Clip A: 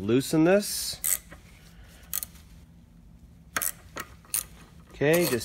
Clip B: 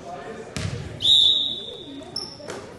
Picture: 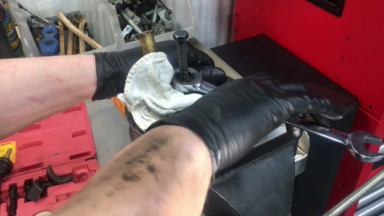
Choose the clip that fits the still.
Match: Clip A